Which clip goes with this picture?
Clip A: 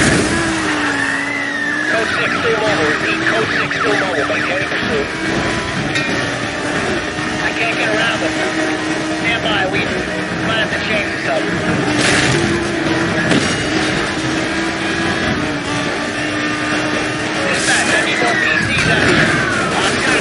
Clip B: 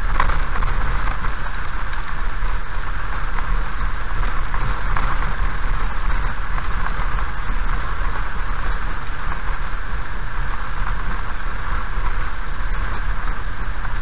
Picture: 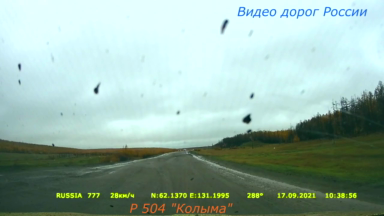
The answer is B